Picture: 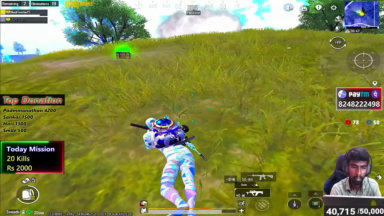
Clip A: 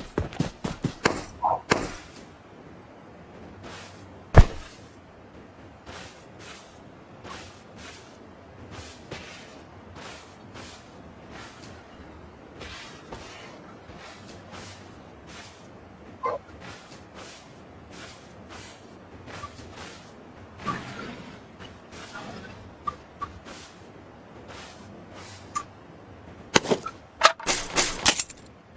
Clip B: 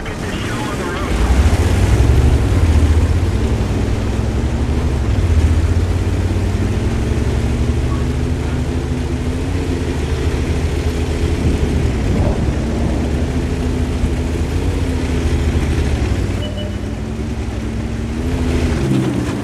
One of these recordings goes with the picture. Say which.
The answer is A